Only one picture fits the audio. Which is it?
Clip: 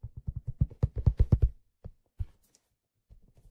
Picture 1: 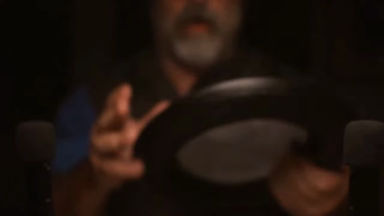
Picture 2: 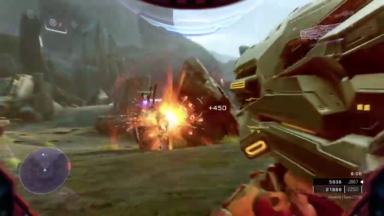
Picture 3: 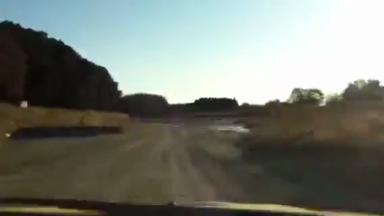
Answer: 1